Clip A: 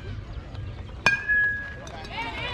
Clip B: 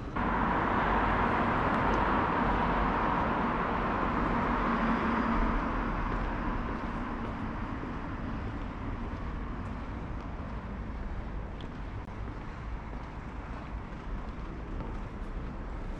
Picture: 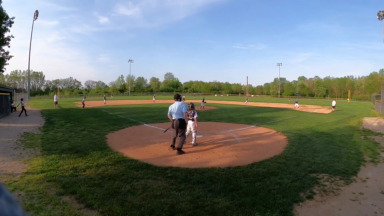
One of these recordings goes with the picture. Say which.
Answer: A